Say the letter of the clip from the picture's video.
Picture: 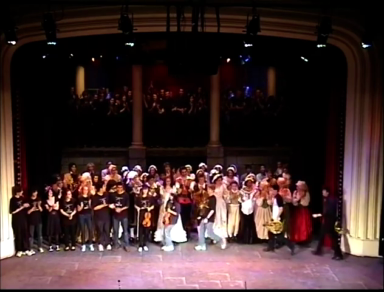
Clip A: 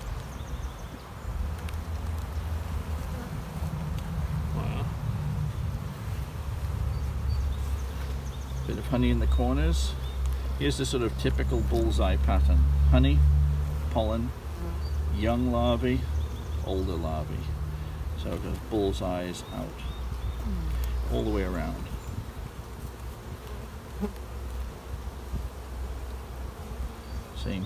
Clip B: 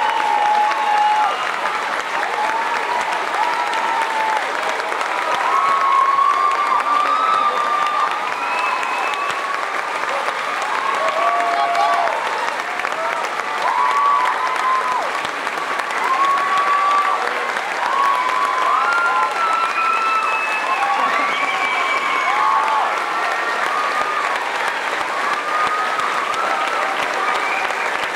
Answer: B